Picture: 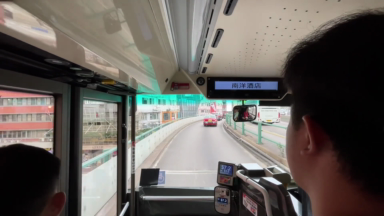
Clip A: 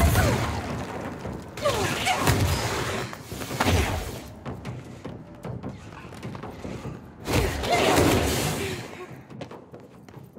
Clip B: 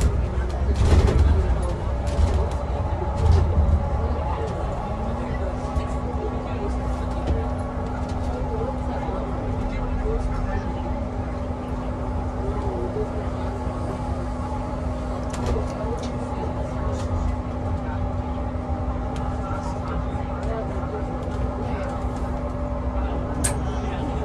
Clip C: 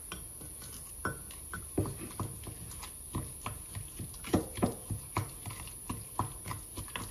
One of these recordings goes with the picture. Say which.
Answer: B